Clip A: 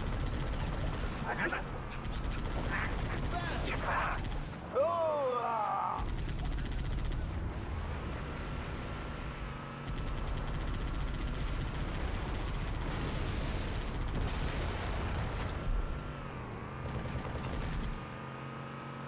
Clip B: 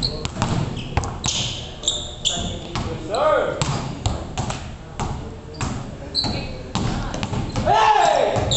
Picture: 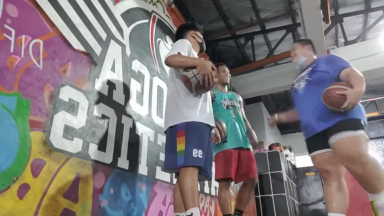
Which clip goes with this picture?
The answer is B